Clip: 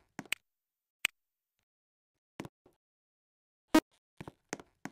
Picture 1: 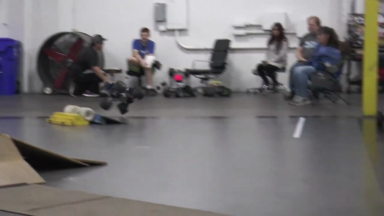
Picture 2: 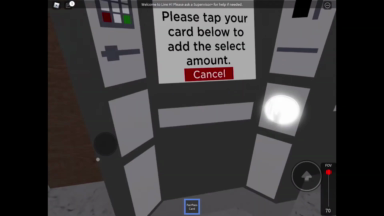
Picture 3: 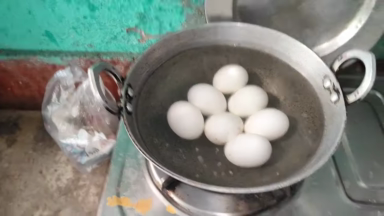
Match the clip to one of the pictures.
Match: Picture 2